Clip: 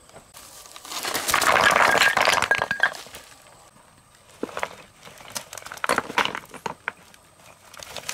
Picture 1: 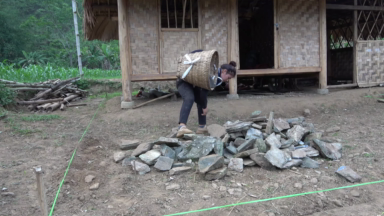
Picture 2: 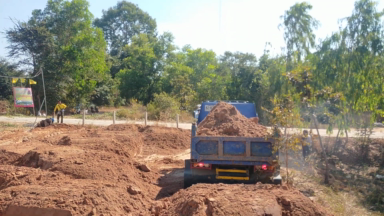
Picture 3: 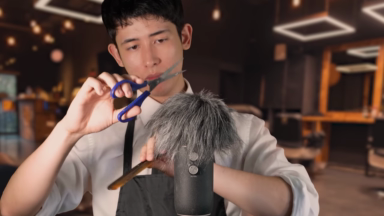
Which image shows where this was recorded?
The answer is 1